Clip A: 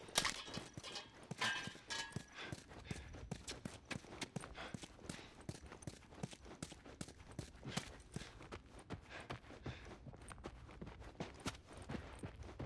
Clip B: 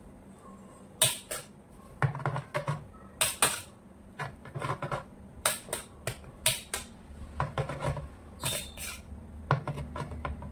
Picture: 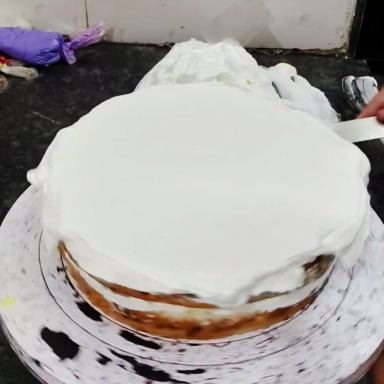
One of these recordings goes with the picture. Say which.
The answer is B